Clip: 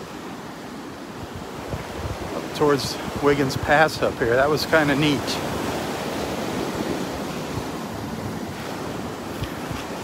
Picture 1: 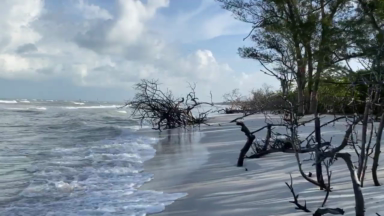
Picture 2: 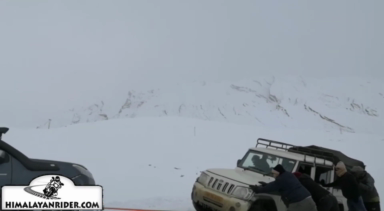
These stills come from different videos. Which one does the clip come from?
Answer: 1